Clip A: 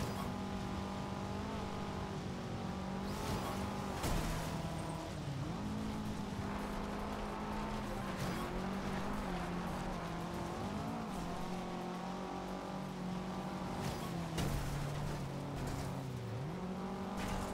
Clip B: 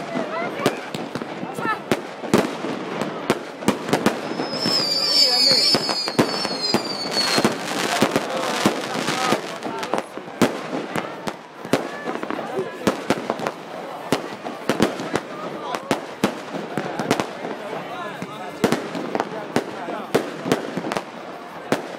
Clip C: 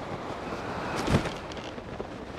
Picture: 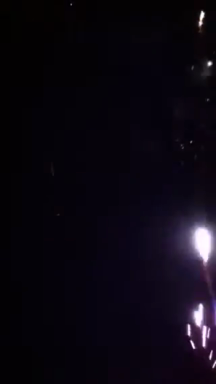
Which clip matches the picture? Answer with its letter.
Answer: B